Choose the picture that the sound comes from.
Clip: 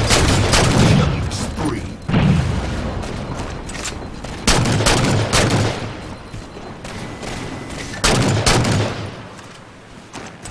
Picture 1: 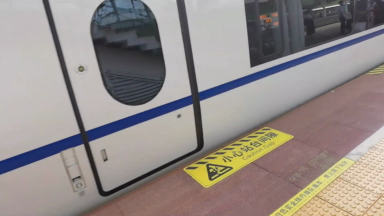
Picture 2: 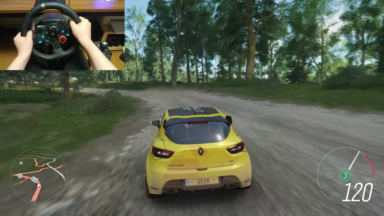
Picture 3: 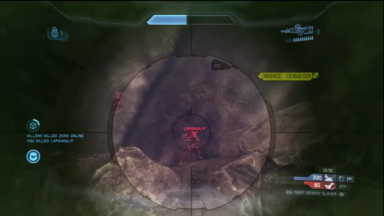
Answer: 3